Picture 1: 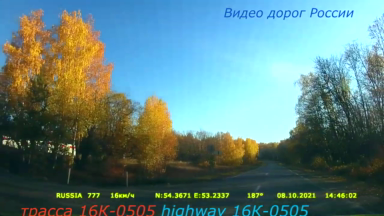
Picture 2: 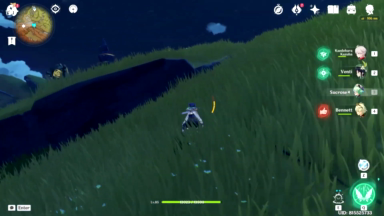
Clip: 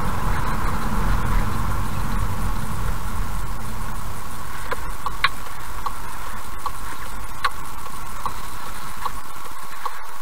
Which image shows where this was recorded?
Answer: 1